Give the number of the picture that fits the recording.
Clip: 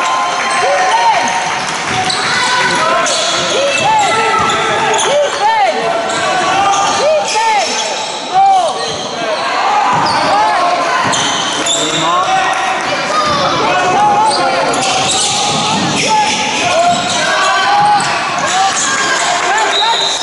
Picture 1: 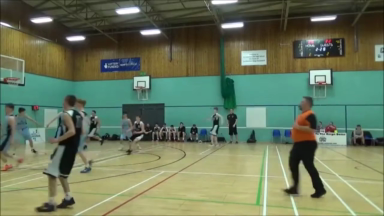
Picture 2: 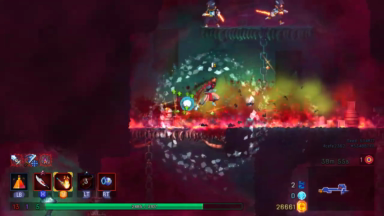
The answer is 1